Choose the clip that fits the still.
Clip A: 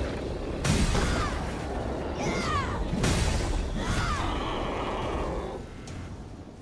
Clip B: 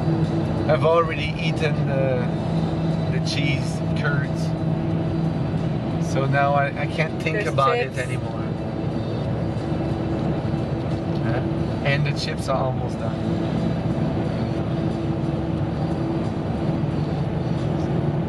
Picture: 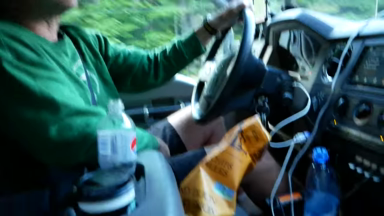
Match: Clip B